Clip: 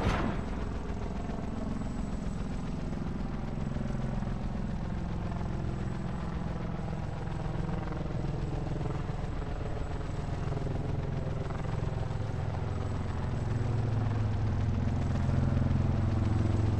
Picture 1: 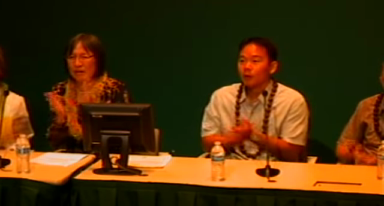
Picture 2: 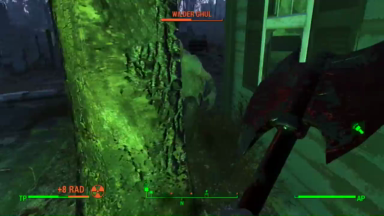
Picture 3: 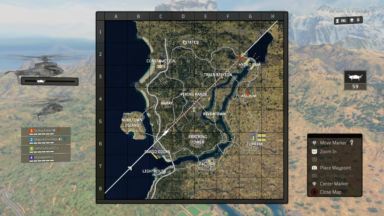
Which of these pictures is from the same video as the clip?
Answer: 3